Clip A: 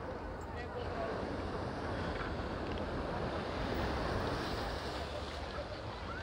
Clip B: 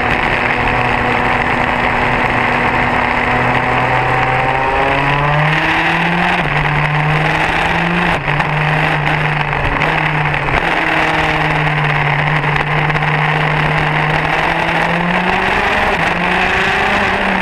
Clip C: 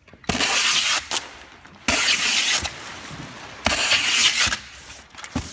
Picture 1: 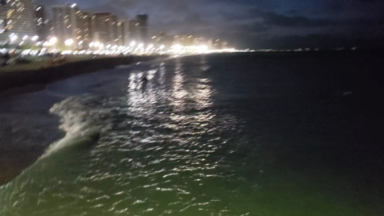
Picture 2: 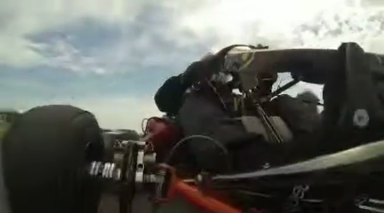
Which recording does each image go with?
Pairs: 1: A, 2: B